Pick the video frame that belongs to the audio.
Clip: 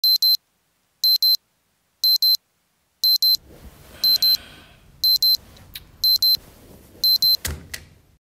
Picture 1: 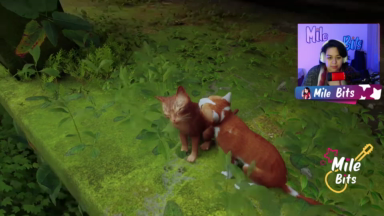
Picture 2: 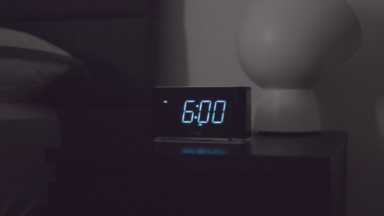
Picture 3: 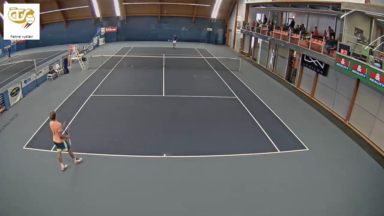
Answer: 2